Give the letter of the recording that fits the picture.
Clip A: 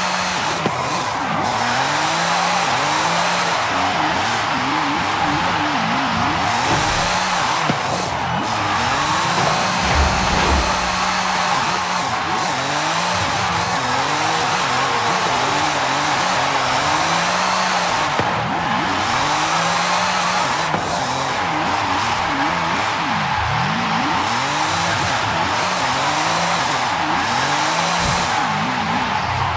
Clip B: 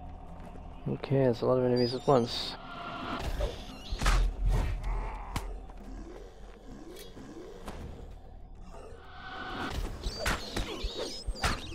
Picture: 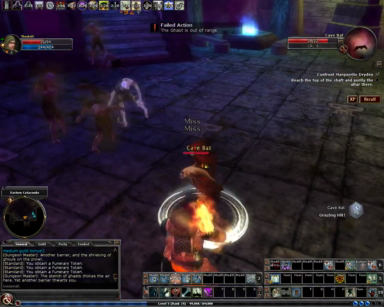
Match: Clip B